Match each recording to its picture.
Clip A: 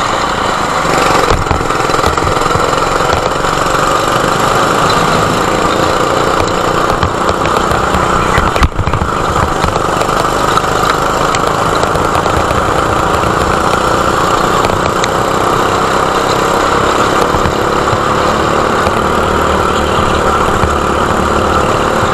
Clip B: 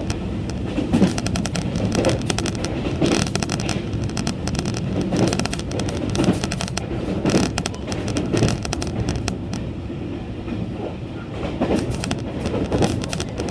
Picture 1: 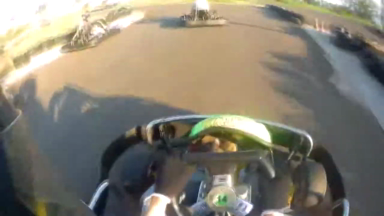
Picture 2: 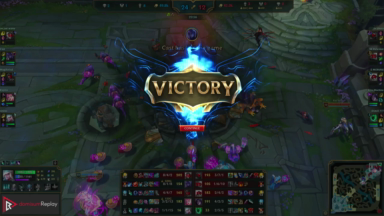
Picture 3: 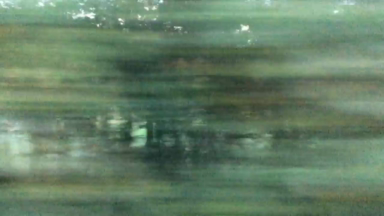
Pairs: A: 1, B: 3